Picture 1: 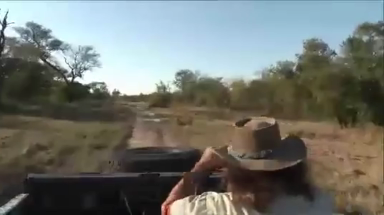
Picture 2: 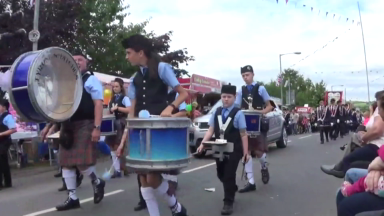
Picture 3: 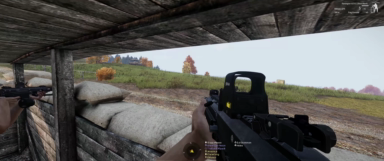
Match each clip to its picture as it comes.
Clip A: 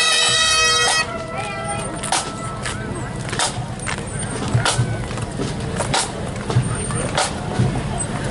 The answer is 2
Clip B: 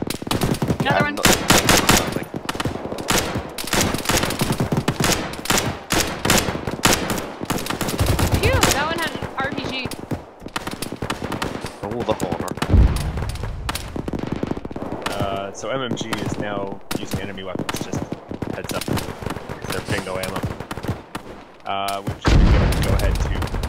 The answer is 3